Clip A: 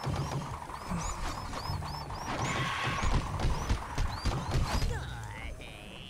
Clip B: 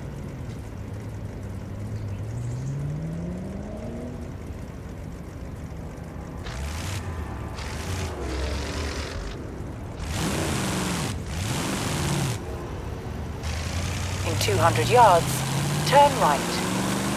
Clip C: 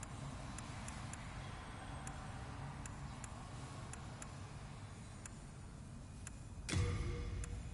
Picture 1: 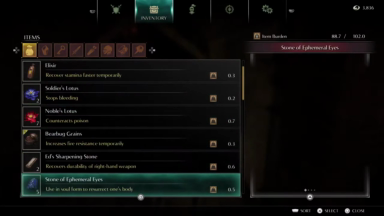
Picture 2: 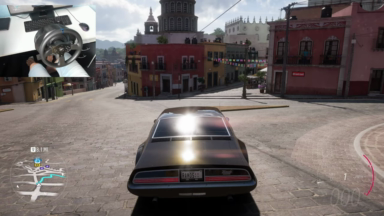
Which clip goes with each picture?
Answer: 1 C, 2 B